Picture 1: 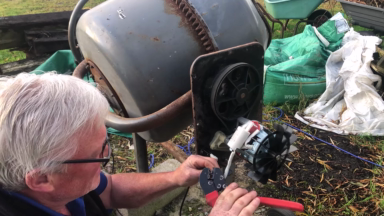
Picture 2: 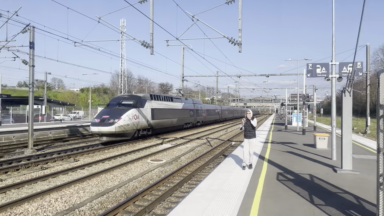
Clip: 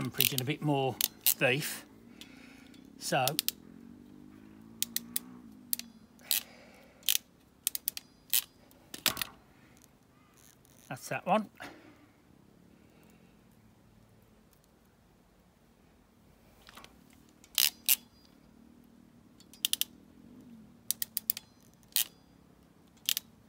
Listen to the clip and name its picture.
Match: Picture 1